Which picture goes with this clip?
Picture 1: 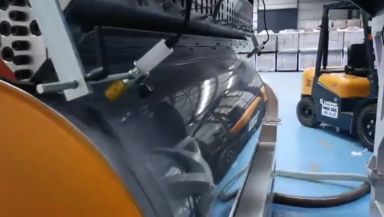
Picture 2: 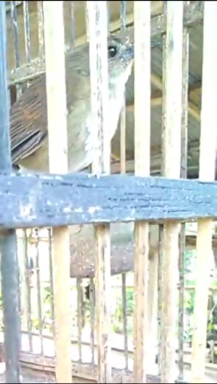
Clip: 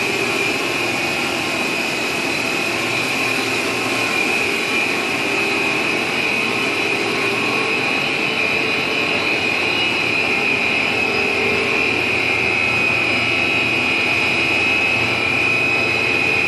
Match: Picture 1